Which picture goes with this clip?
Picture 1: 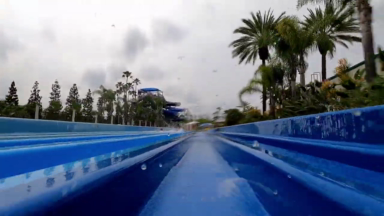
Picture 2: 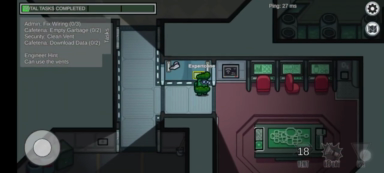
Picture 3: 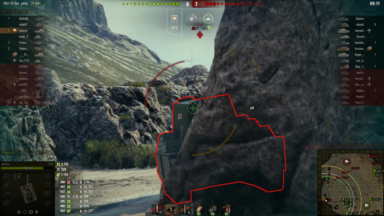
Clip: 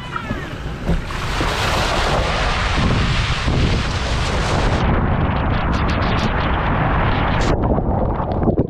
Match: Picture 1